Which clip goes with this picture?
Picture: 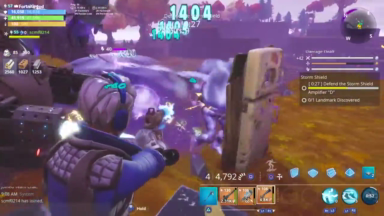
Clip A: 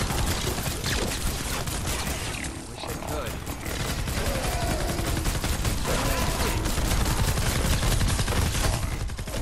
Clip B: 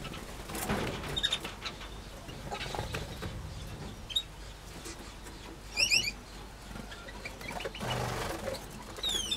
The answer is A